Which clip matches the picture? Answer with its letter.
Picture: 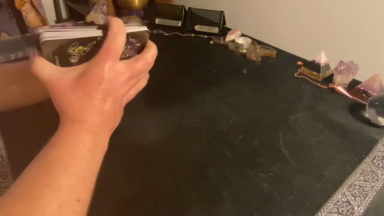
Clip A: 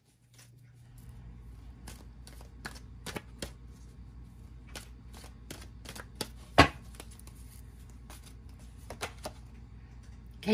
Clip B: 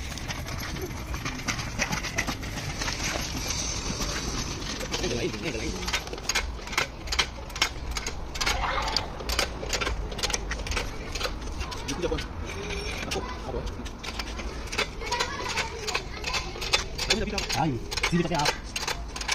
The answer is A